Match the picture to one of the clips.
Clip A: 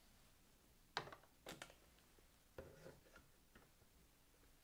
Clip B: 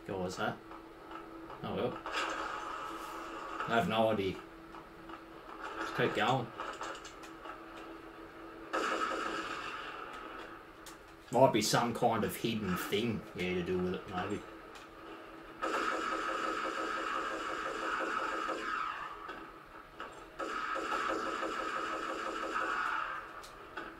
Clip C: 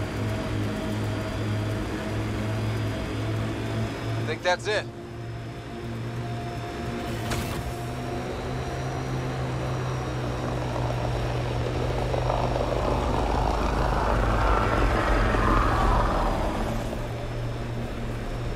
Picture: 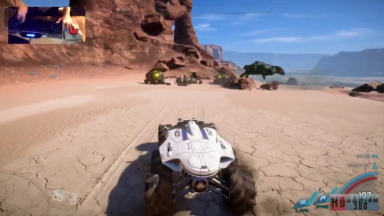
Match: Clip C